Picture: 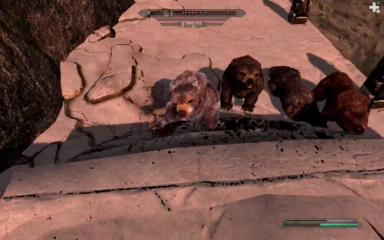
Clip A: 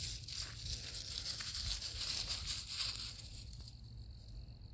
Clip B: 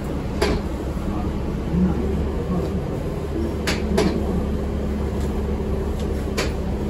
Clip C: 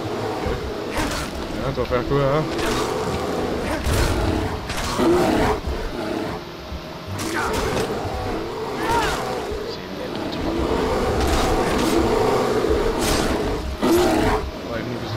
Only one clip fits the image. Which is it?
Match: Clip C